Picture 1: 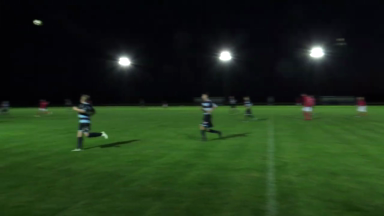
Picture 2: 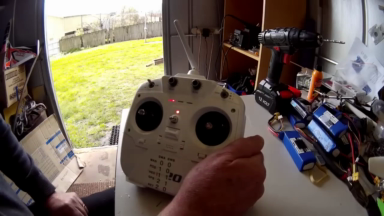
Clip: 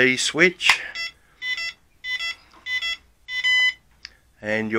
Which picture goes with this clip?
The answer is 2